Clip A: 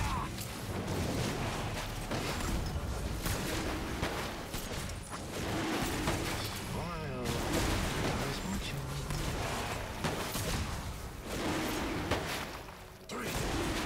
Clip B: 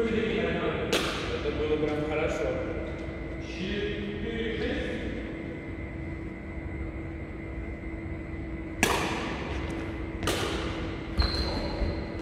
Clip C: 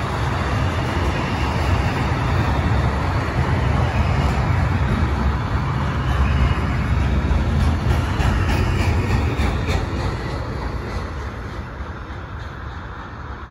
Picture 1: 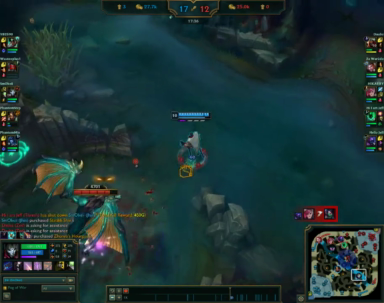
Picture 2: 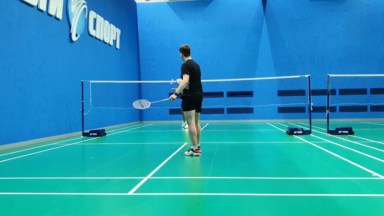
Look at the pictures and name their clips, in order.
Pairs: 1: A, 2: B